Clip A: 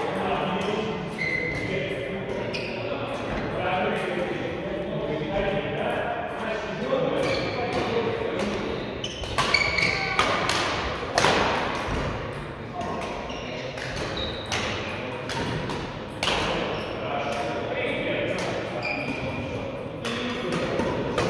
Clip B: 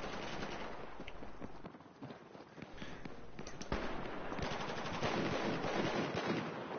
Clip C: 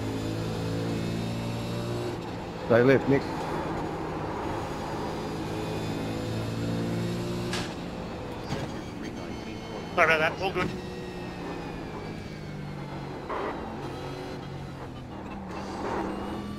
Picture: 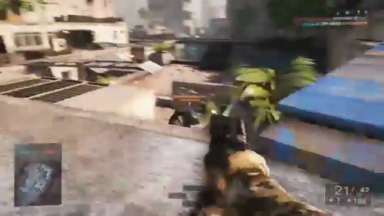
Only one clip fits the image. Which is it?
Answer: B